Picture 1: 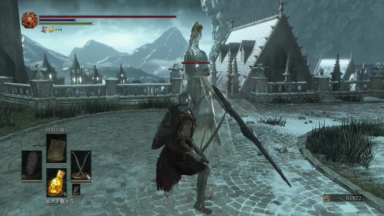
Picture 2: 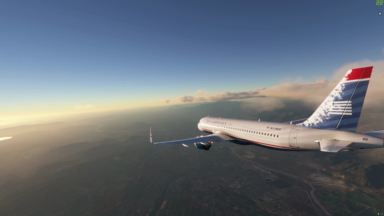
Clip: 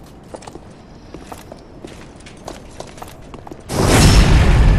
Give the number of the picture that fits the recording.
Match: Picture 1